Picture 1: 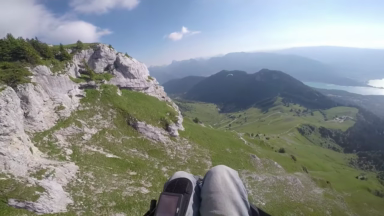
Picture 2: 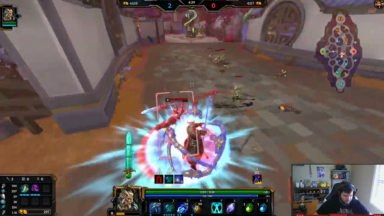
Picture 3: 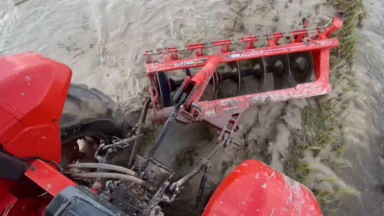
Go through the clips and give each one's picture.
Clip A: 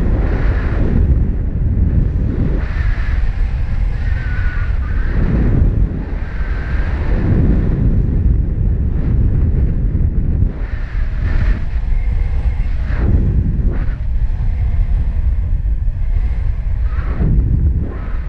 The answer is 1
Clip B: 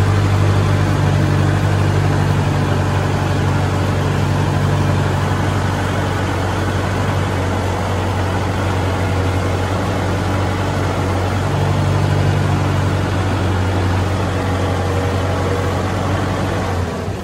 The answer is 3